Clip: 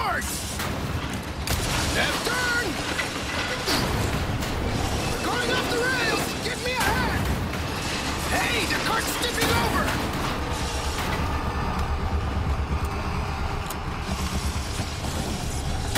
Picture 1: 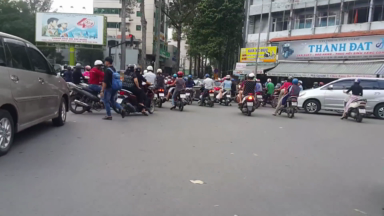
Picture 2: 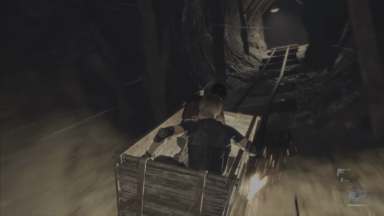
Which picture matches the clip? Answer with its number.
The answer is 2